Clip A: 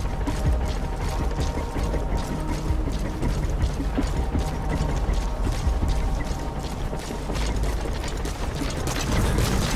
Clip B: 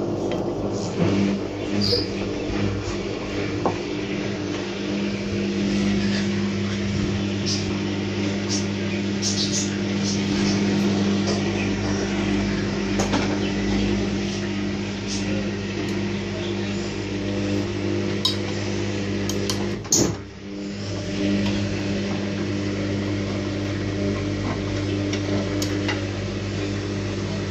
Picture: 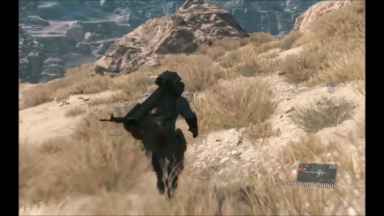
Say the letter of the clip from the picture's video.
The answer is A